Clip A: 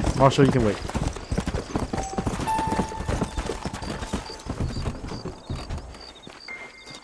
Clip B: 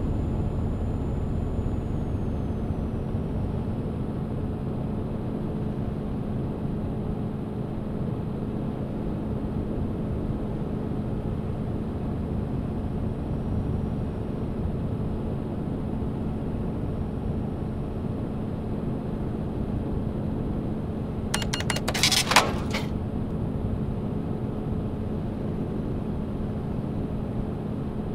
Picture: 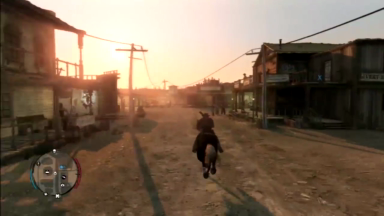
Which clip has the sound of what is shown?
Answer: A